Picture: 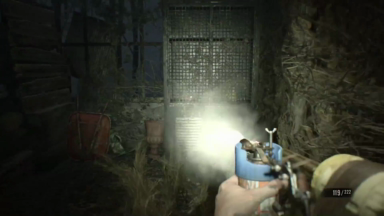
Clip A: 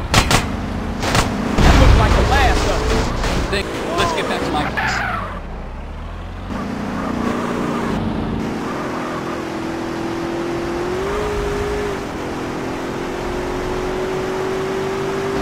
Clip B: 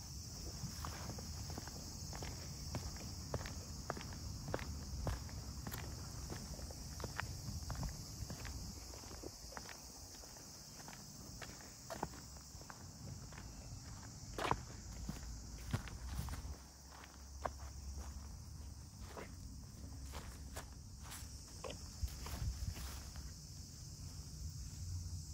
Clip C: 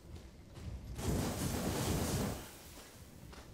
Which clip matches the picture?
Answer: C